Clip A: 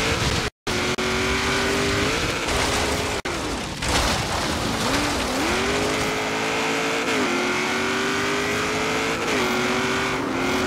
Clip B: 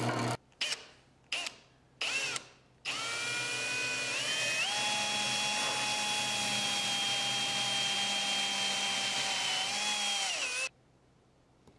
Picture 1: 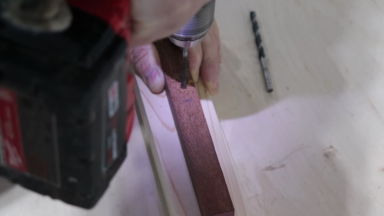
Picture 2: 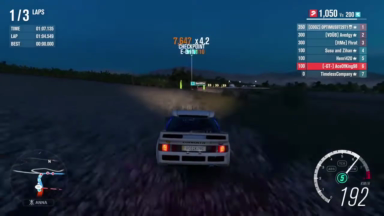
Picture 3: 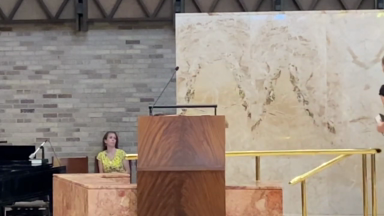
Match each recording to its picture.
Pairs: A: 2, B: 1